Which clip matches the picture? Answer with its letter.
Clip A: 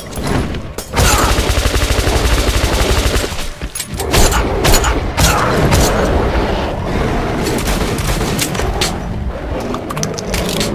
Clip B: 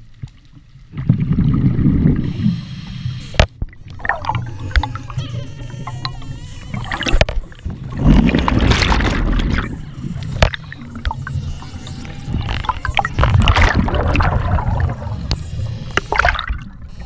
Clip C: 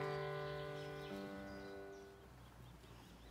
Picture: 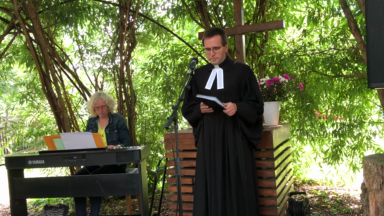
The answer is C